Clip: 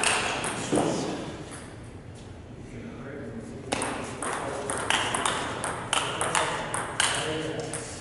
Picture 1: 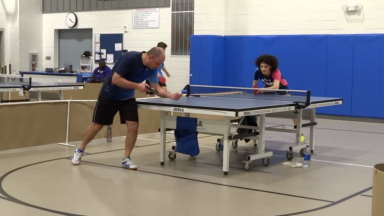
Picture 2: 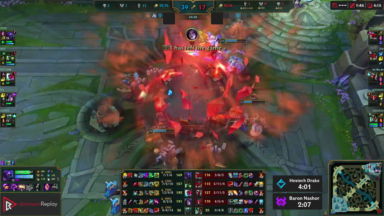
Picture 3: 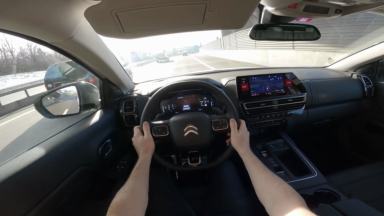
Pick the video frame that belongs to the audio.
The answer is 1